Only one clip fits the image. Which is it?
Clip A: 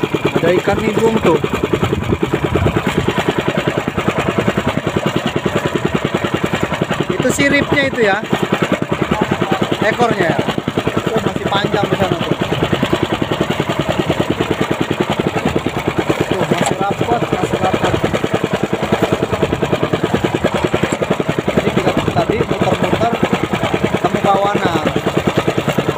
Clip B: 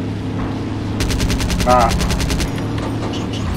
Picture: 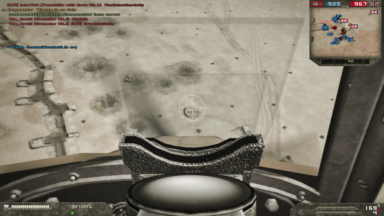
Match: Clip B